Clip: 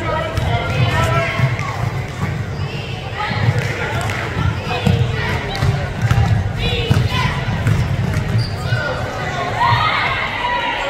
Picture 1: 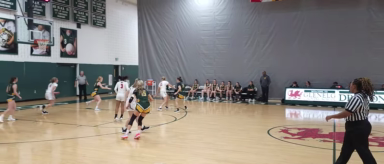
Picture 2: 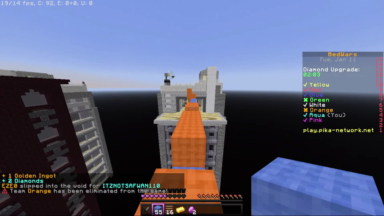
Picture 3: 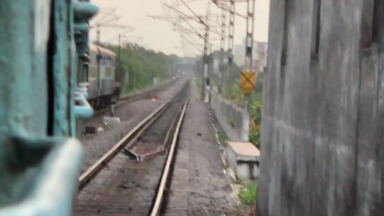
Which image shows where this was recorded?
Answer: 1